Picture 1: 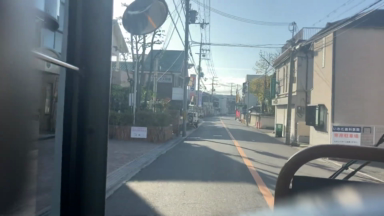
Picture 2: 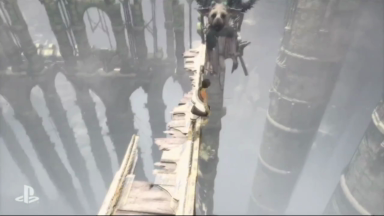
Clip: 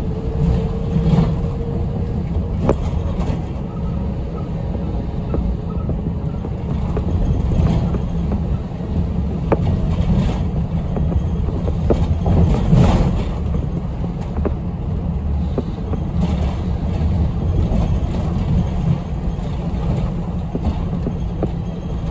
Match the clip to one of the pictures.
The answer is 1